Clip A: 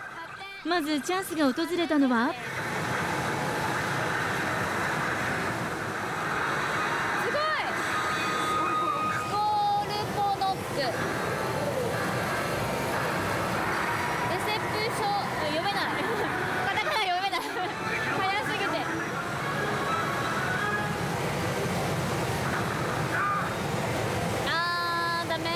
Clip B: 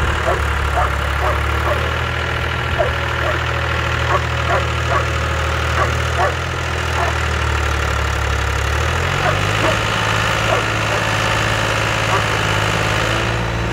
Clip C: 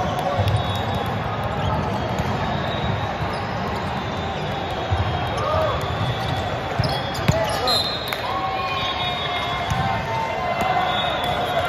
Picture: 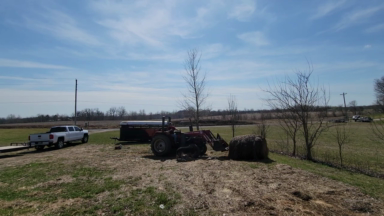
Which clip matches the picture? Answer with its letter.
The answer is B